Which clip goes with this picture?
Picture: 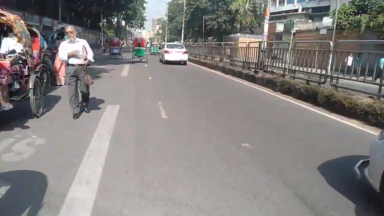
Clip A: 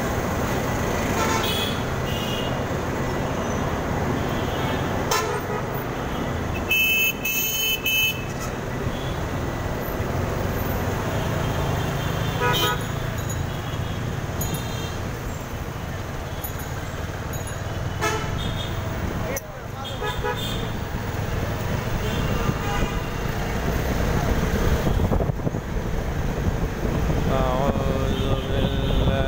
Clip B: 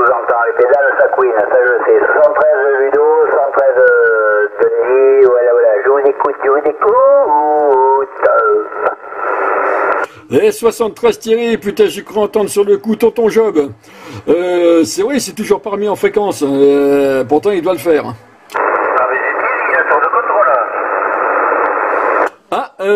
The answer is A